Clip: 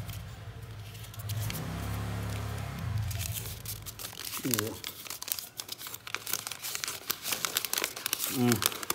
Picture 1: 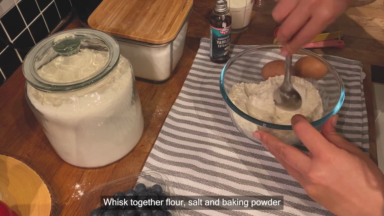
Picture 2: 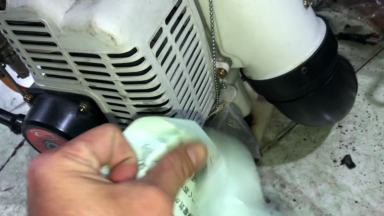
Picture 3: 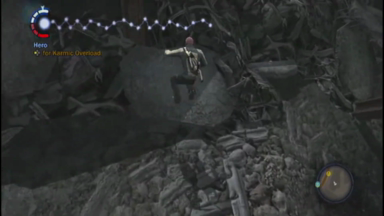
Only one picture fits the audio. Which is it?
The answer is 2